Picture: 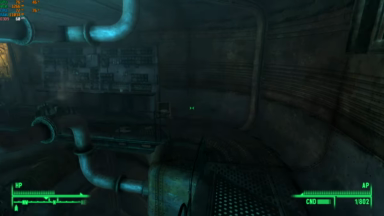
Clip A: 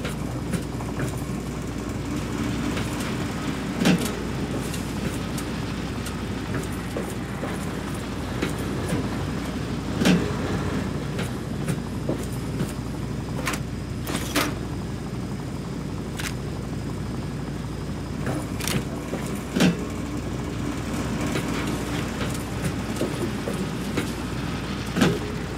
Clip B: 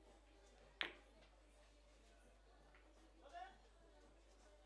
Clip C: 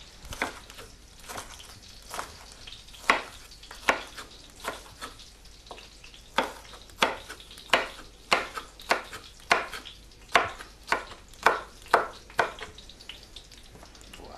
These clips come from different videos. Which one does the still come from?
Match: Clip A